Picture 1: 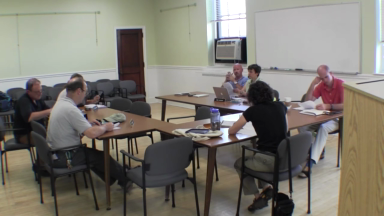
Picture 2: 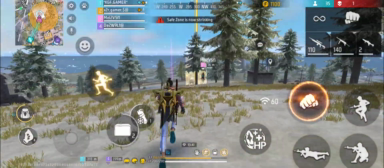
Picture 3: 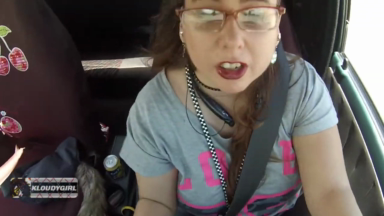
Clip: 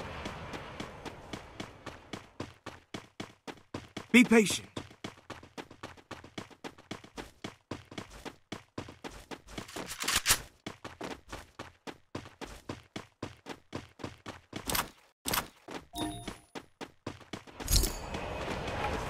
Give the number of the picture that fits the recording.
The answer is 2